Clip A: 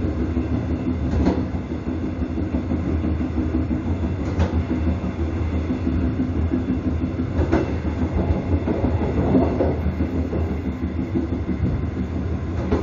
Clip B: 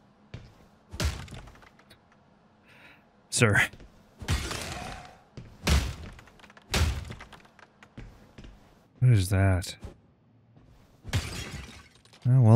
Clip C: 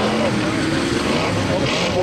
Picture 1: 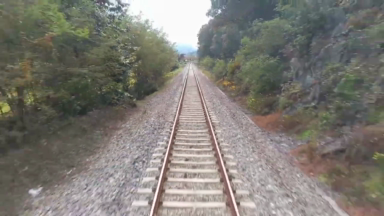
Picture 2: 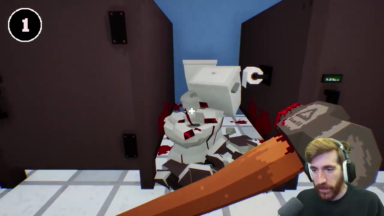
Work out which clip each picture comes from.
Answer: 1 A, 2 B